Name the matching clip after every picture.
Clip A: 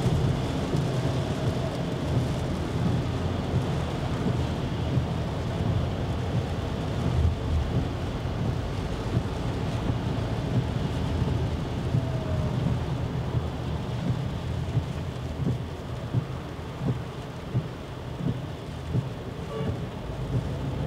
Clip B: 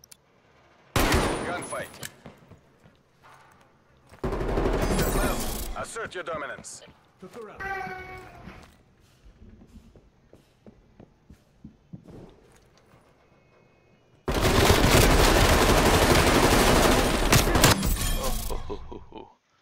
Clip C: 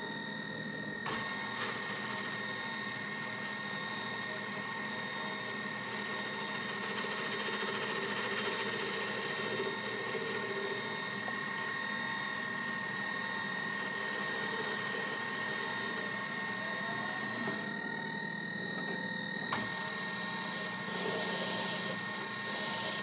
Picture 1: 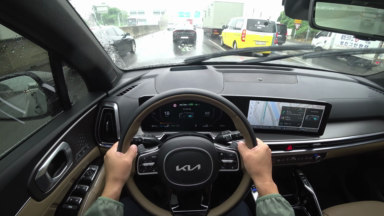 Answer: A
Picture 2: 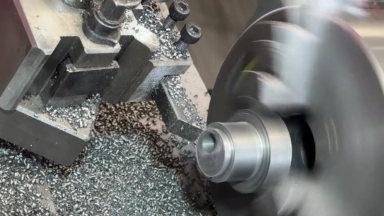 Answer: C